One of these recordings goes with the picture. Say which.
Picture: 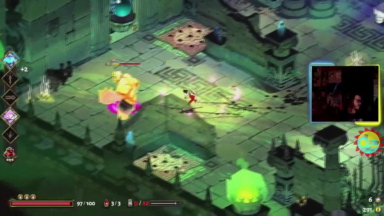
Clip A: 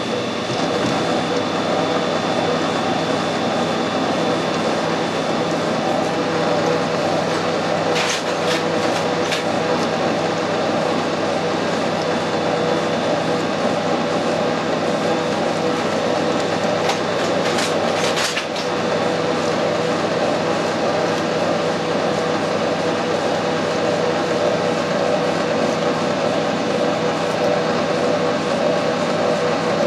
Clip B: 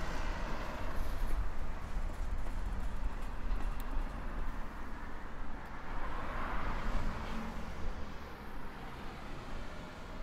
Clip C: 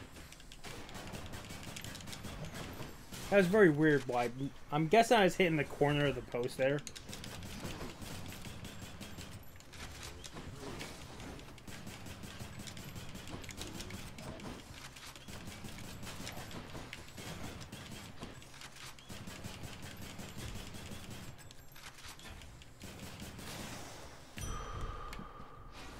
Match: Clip C